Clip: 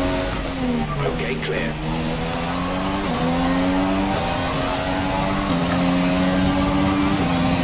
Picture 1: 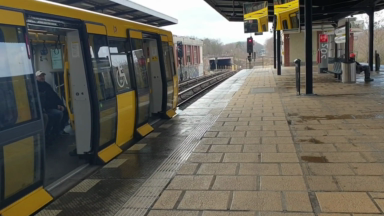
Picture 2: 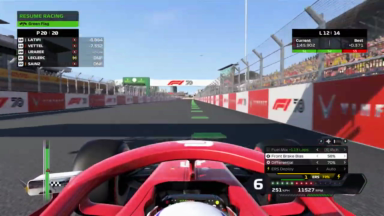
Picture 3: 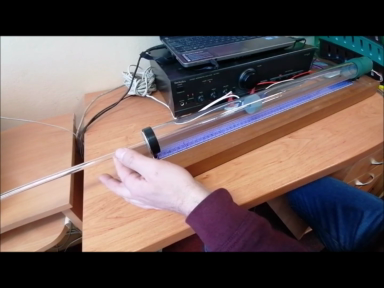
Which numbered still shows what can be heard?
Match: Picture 2